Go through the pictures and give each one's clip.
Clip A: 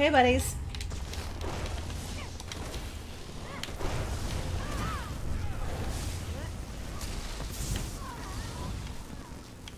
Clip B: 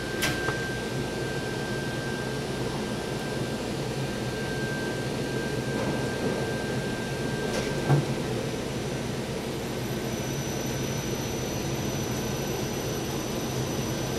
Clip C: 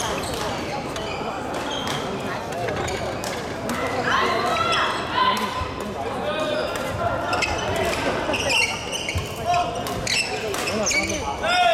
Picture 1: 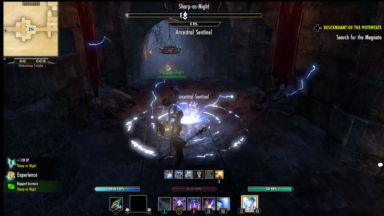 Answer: A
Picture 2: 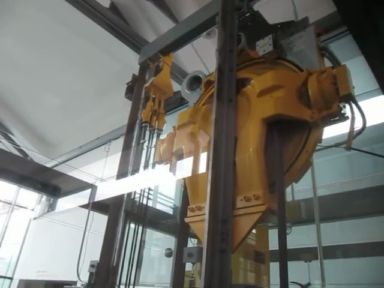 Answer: B